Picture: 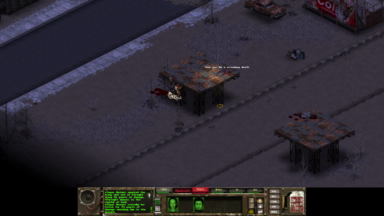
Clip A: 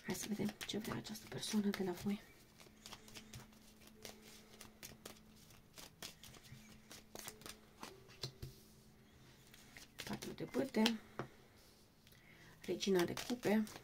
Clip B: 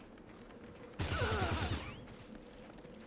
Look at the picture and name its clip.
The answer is B